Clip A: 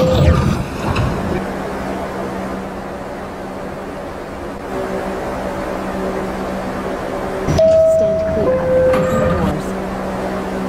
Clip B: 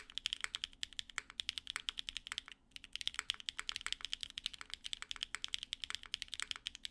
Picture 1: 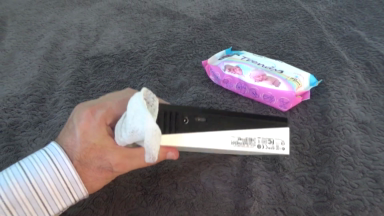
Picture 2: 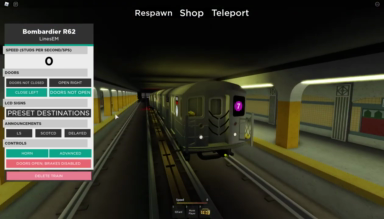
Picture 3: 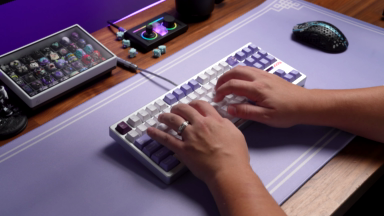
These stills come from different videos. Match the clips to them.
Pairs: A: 2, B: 3